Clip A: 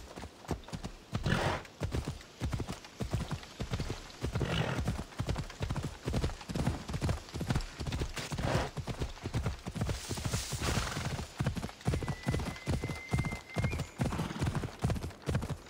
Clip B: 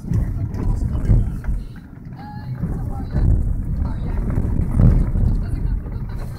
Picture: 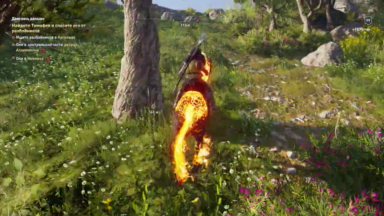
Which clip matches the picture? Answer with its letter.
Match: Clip A